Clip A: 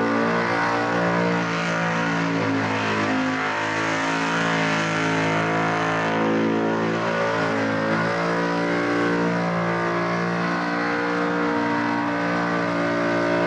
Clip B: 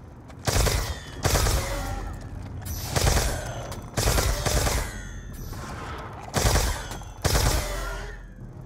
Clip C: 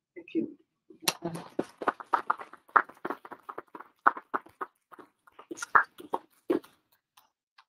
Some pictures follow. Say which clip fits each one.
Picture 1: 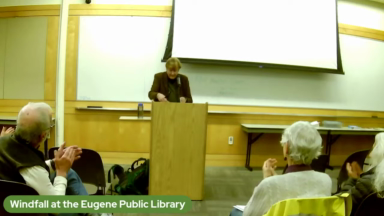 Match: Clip C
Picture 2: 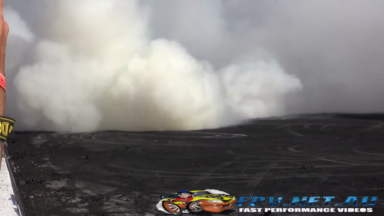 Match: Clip A